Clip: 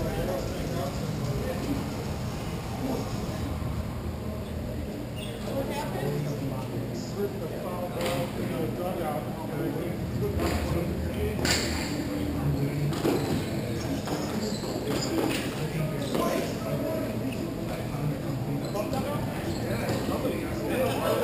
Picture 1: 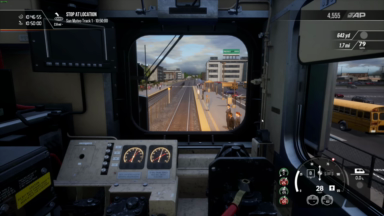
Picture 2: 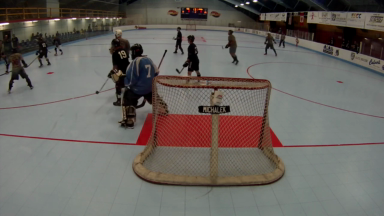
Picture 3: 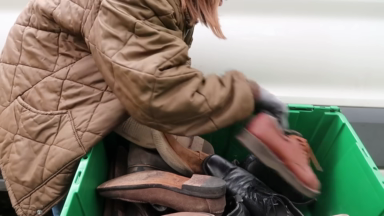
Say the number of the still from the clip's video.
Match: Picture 2